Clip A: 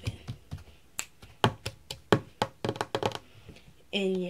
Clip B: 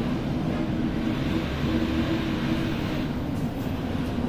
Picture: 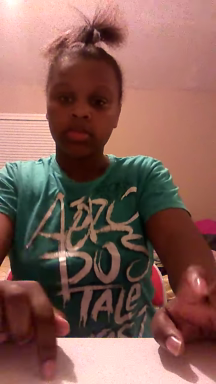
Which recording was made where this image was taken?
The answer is A